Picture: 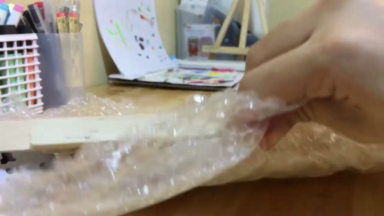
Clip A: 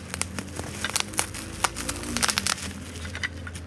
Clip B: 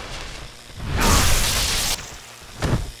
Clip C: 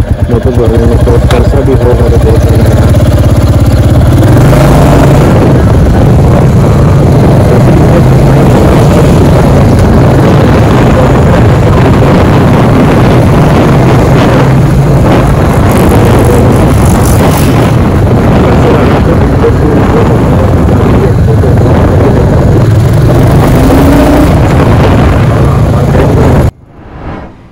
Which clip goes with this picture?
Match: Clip A